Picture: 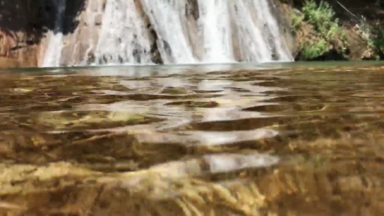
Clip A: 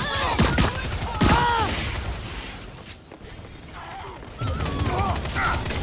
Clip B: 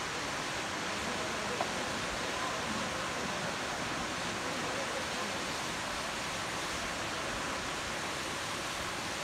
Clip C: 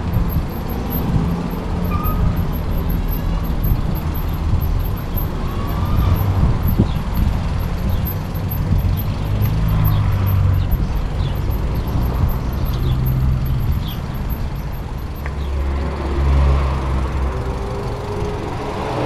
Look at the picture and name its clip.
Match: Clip B